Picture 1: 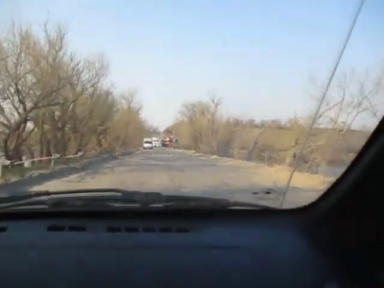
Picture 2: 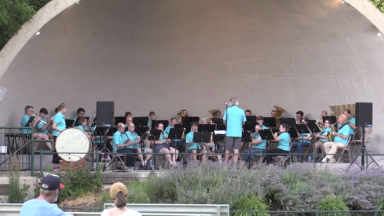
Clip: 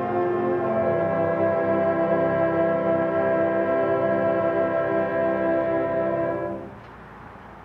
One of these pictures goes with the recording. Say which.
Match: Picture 2